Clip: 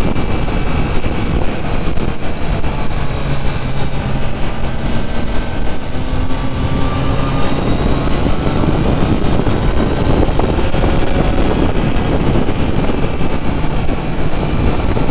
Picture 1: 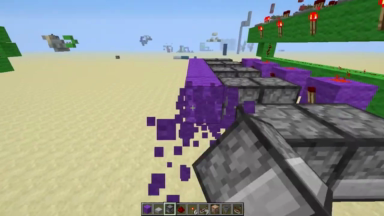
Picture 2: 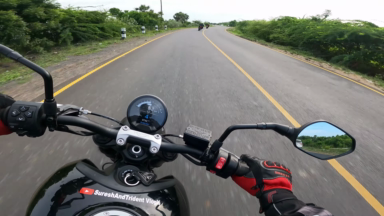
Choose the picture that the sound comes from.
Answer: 2